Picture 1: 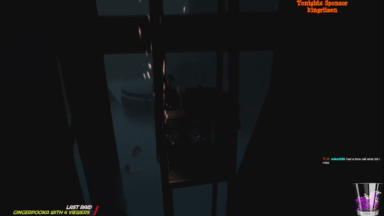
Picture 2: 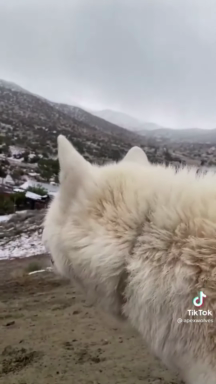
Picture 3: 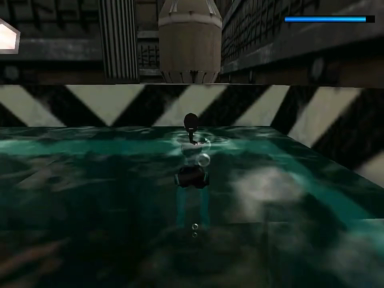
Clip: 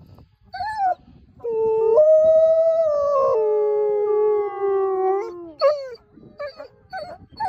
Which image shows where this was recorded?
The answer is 2